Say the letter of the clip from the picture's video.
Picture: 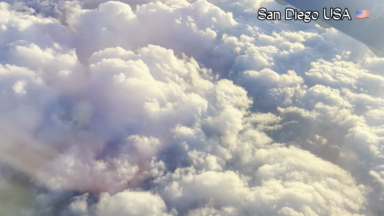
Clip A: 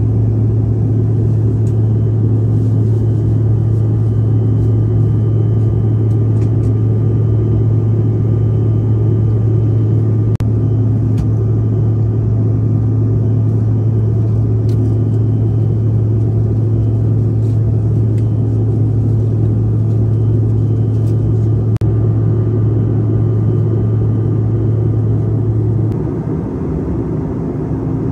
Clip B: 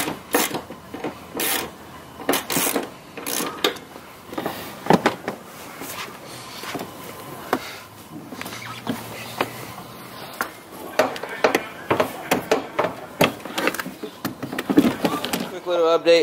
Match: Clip A